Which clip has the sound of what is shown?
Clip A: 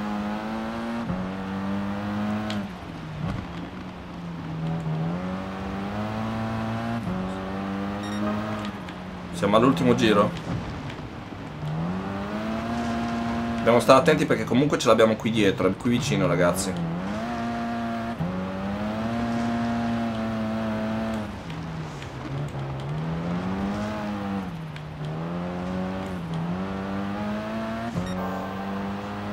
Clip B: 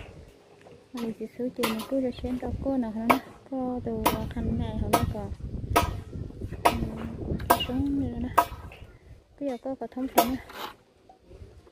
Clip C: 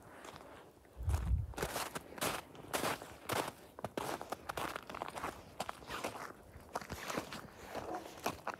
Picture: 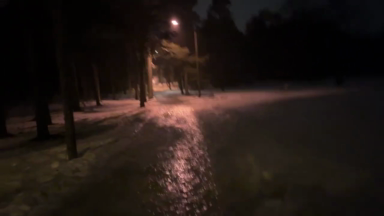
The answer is C